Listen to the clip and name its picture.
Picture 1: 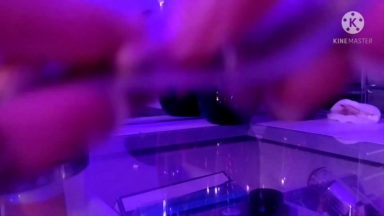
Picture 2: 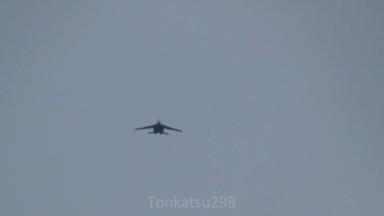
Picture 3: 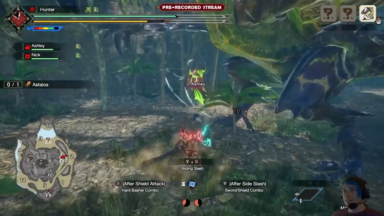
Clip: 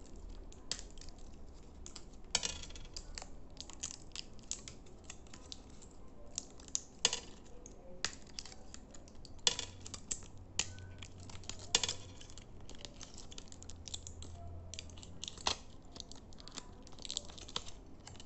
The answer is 1